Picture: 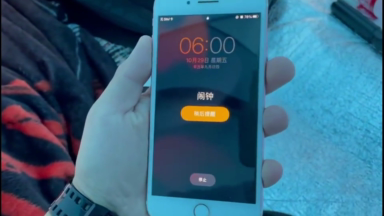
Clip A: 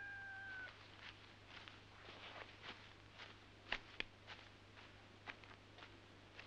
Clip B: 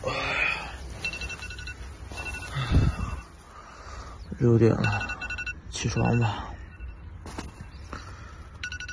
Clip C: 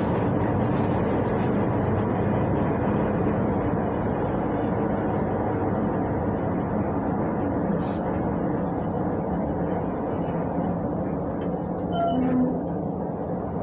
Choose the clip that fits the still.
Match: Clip B